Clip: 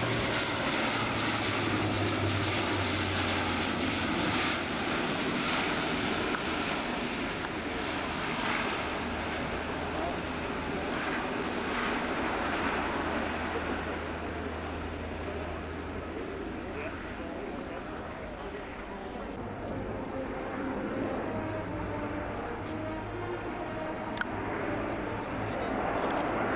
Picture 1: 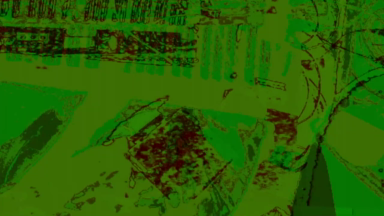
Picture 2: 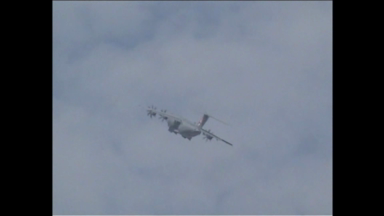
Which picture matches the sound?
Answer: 2